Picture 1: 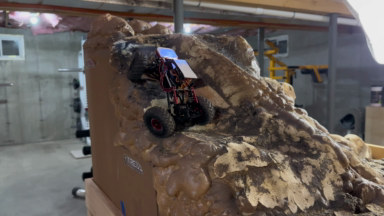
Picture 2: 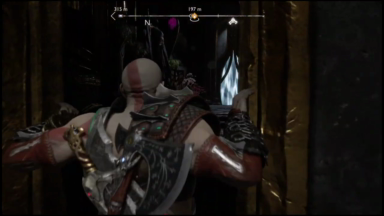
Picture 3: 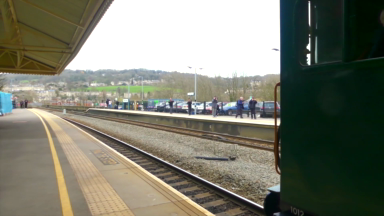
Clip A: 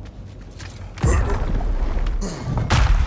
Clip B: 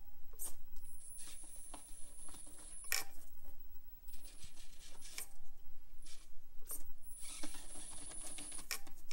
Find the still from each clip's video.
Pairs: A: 2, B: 1